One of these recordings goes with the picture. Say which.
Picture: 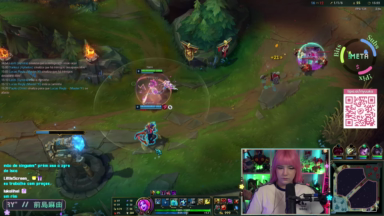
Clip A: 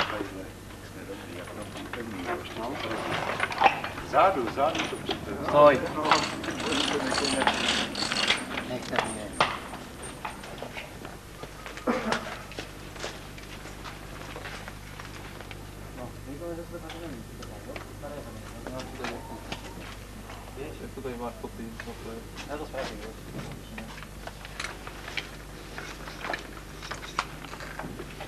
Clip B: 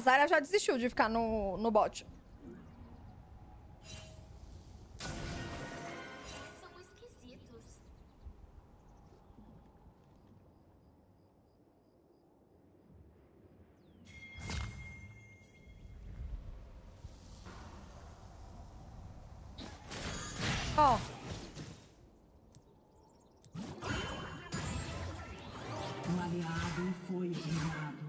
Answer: B